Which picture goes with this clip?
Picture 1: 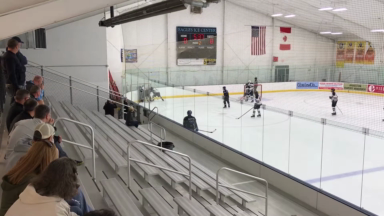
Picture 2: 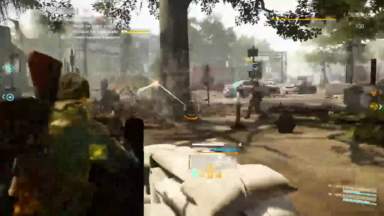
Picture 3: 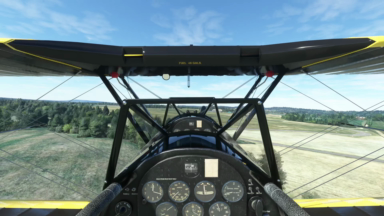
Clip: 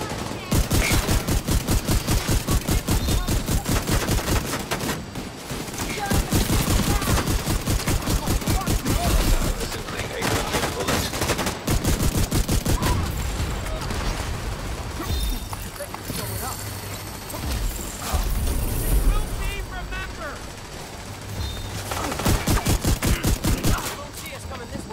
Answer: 2